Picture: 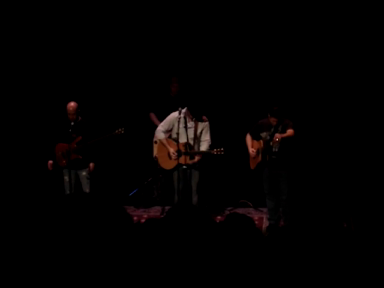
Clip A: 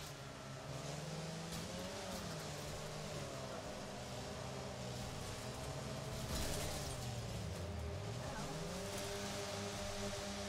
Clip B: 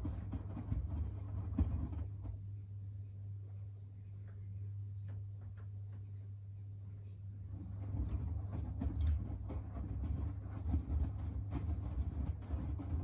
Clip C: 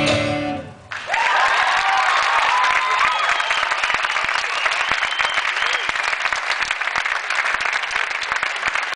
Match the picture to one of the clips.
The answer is C